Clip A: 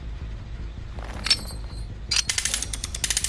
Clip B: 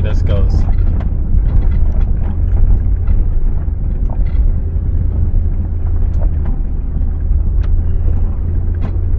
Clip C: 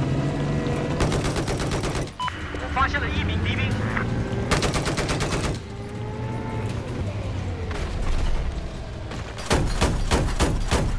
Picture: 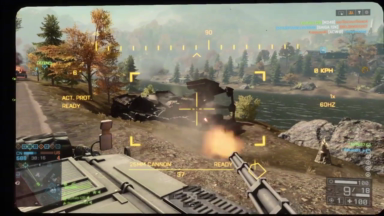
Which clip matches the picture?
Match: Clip C